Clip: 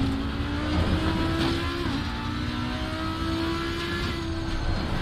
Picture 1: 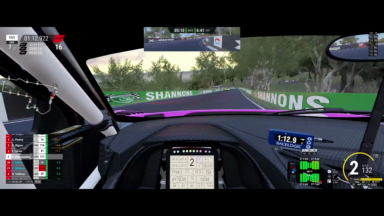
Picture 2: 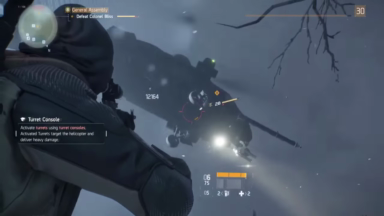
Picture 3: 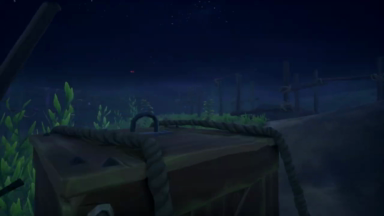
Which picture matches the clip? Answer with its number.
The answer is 1